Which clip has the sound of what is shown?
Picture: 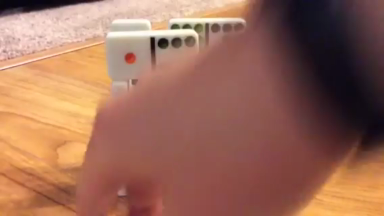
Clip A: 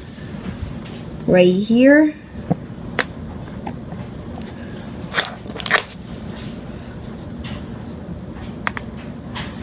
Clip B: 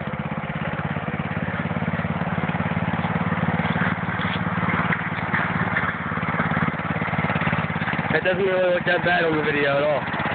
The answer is A